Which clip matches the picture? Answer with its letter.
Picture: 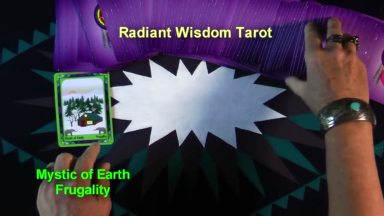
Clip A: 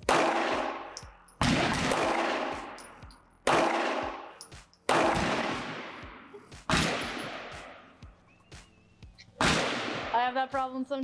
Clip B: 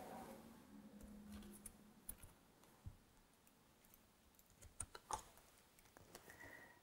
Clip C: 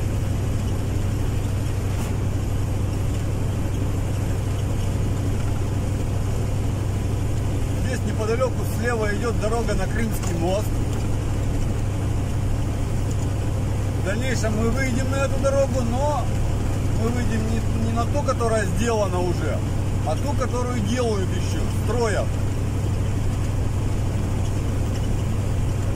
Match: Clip B